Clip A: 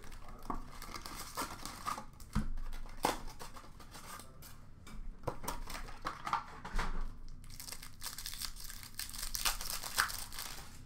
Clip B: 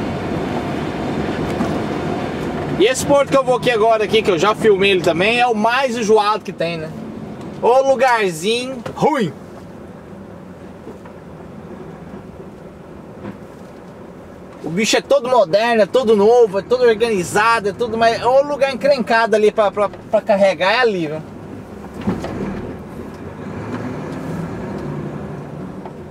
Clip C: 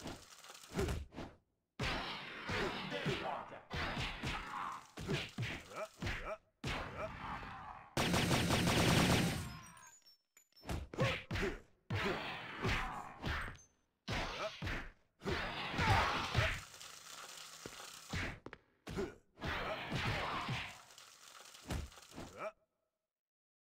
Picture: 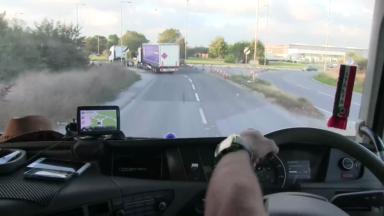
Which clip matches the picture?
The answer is B